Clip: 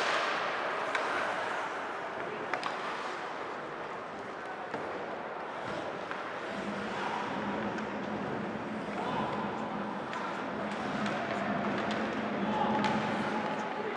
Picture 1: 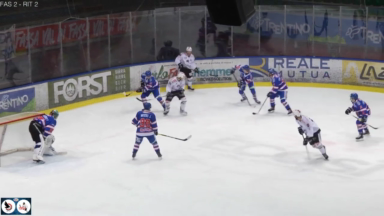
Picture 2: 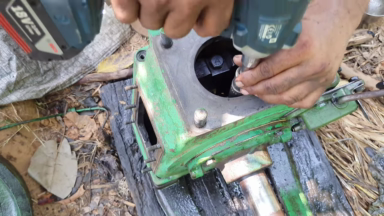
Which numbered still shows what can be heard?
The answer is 1